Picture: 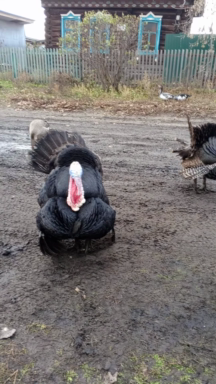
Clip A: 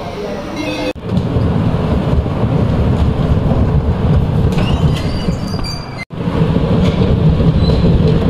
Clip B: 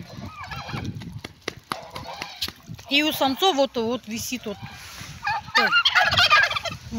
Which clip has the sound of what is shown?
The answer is B